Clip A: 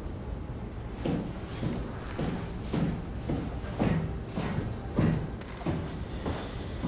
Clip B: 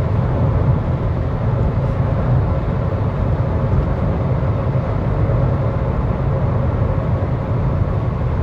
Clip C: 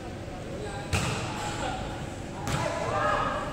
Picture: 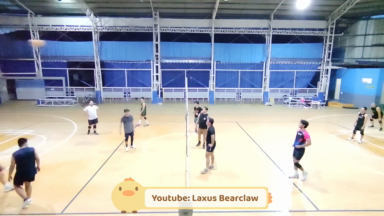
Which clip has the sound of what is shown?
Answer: C